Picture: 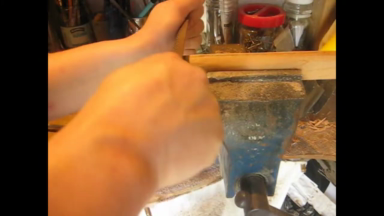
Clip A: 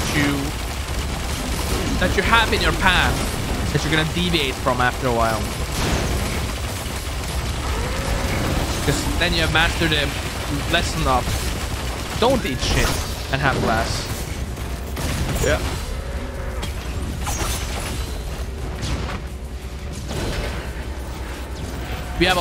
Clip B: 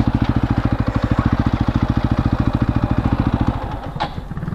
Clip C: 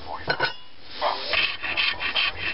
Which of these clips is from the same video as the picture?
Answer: C